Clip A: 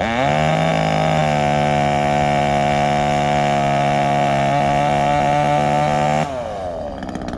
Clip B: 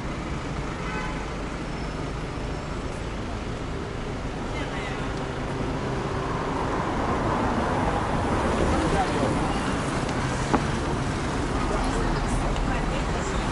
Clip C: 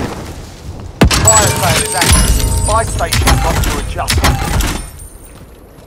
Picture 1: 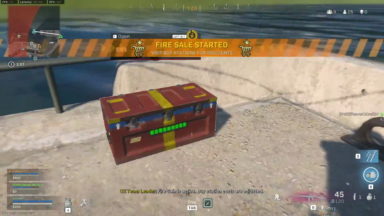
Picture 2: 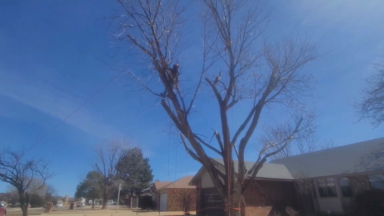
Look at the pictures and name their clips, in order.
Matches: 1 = C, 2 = A